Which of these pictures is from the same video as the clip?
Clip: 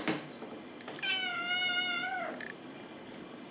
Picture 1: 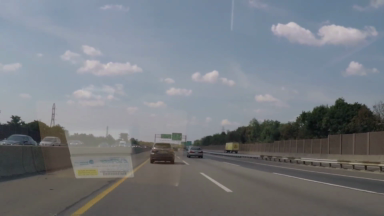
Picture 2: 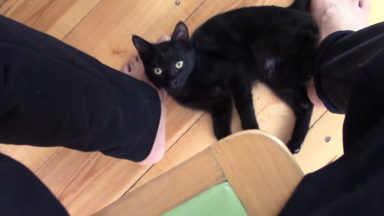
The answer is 2